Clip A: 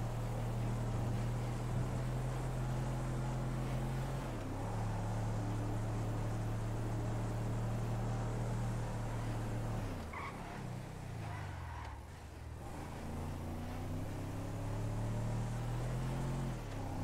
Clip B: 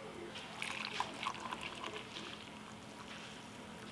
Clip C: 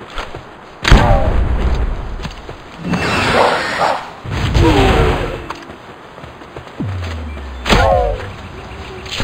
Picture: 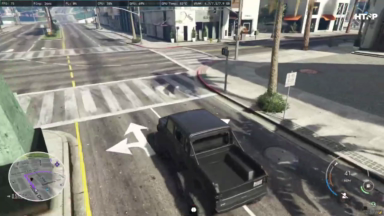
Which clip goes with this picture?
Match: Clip A